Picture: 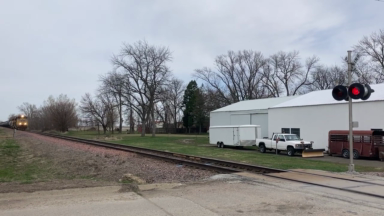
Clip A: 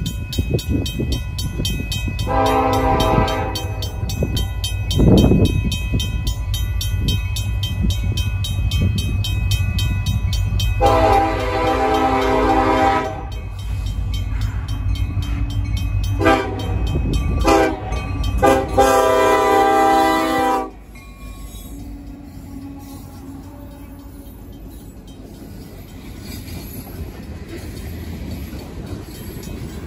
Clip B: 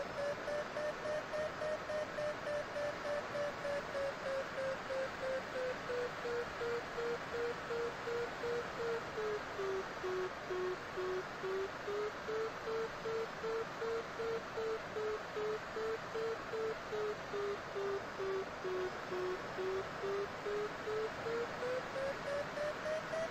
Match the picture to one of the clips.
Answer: A